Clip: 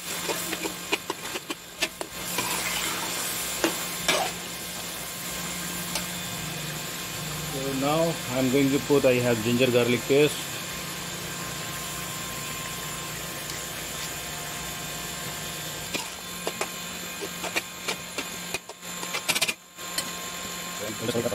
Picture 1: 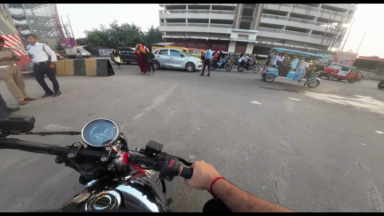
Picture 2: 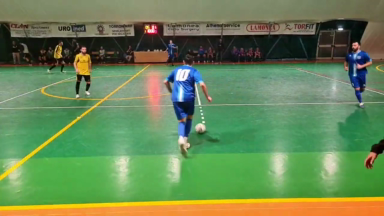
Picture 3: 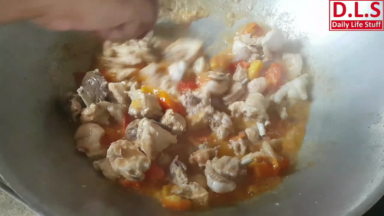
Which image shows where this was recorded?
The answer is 3